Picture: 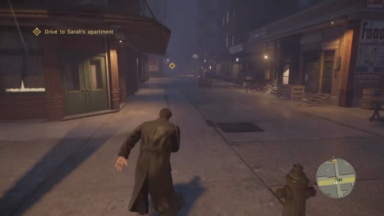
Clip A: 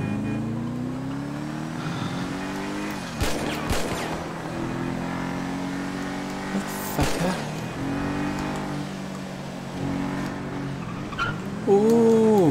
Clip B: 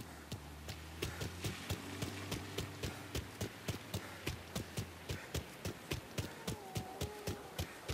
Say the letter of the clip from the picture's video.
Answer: B